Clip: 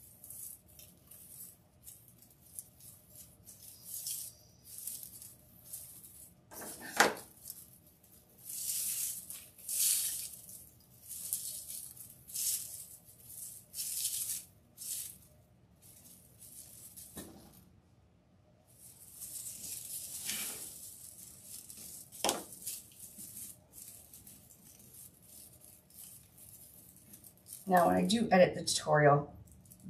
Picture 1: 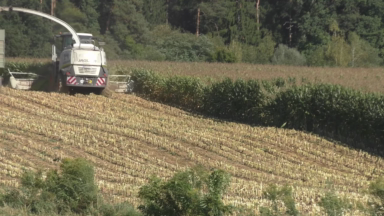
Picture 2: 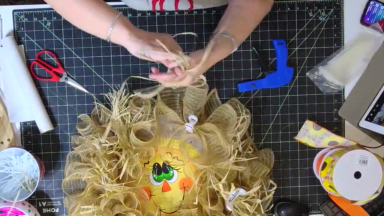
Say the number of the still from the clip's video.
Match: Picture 2